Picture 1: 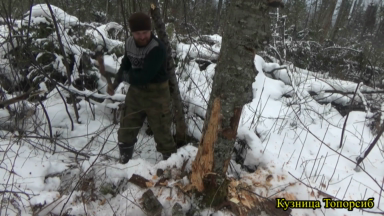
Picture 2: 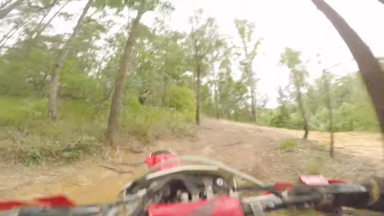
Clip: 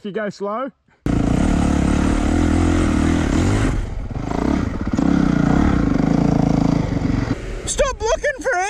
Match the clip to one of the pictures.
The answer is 2